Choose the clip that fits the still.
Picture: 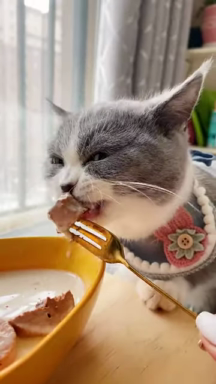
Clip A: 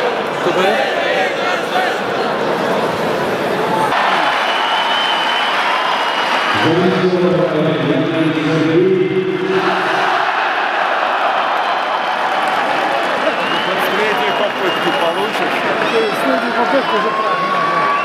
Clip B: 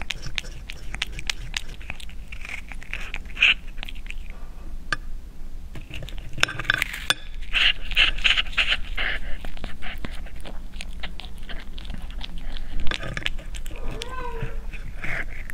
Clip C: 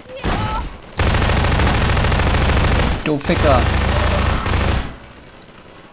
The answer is B